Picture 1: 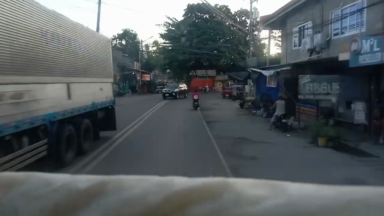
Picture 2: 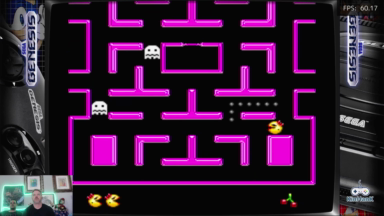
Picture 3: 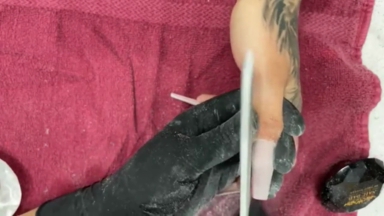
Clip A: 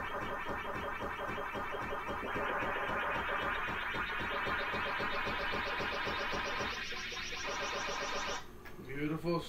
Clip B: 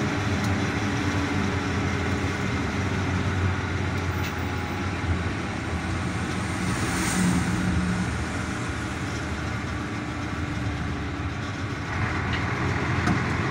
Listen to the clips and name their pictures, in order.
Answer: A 2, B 1